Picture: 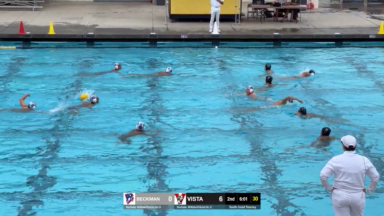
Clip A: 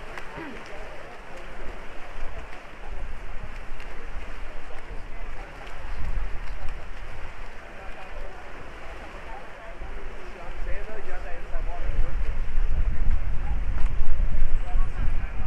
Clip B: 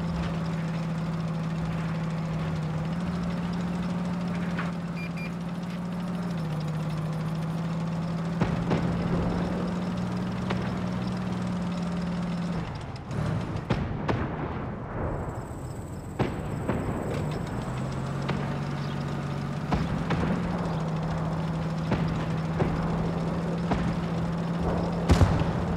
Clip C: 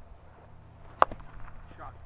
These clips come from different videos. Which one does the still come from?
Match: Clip A